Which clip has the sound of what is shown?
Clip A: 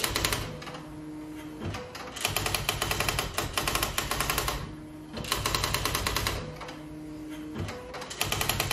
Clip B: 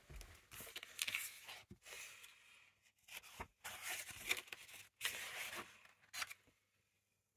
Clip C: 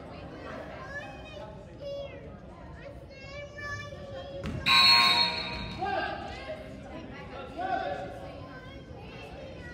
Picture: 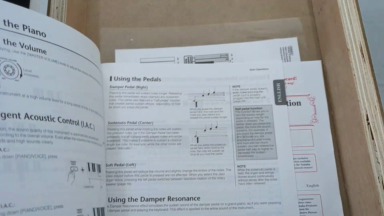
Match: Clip B